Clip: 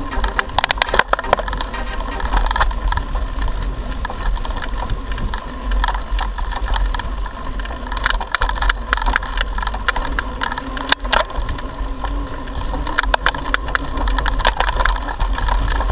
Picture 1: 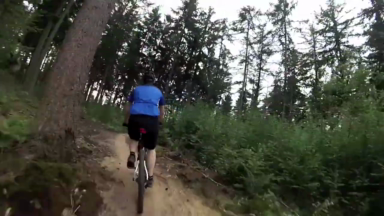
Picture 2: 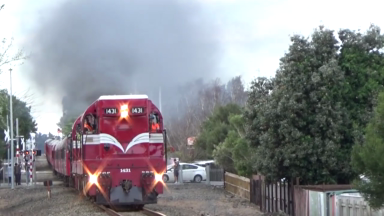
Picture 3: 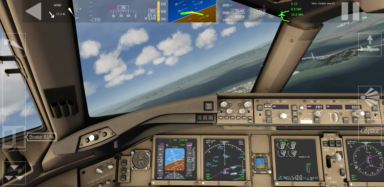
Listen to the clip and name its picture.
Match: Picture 1